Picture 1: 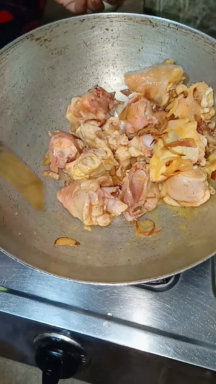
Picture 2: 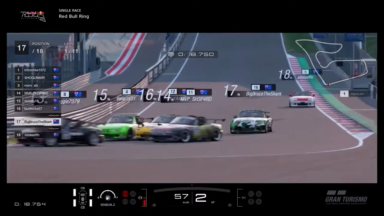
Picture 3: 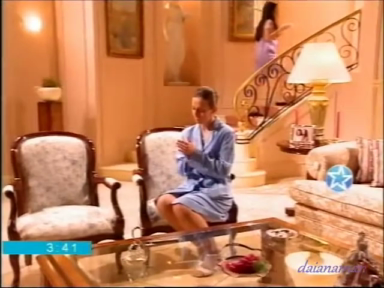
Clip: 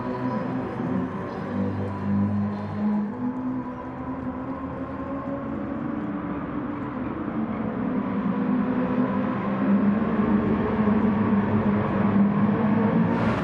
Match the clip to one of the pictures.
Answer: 2